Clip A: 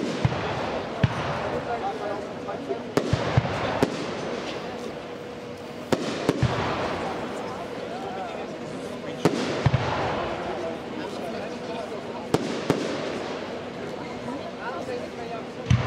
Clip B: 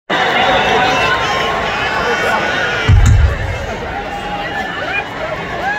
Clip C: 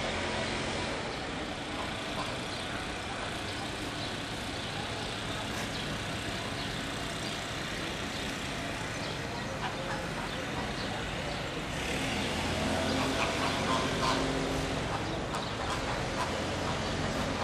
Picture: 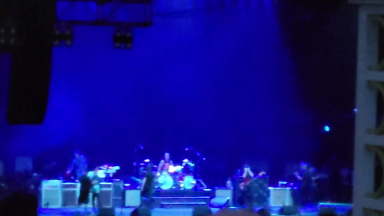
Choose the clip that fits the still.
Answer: B